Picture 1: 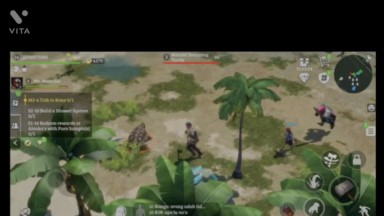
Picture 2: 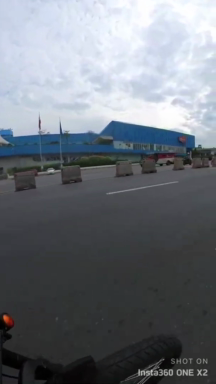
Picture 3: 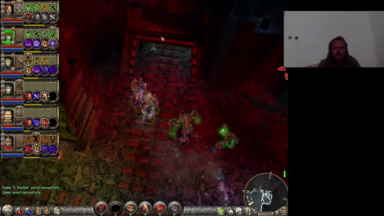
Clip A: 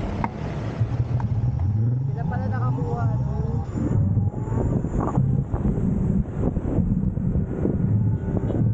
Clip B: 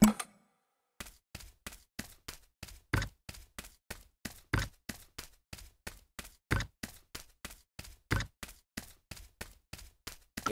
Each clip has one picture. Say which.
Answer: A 2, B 1